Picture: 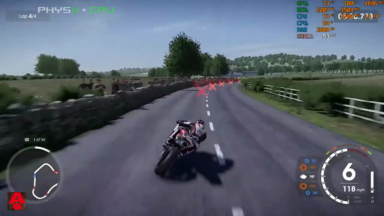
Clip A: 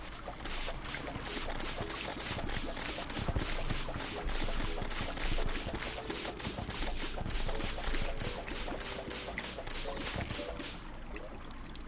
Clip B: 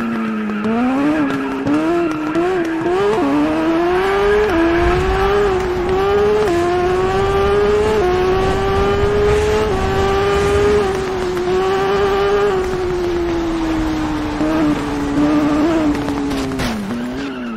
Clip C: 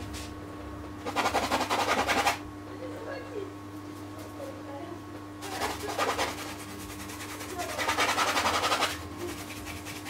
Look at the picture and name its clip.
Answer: B